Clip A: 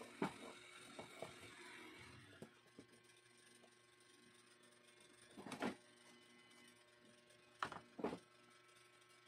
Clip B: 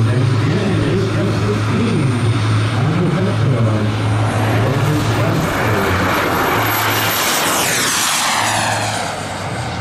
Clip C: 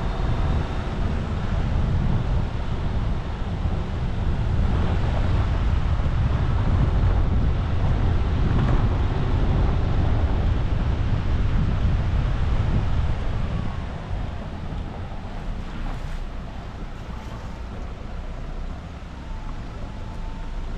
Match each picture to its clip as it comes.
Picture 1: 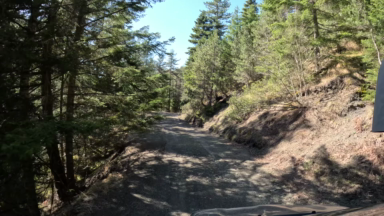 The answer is C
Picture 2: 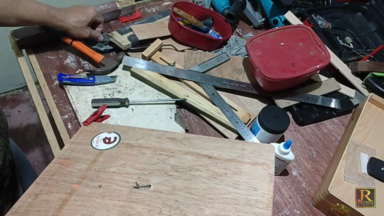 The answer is A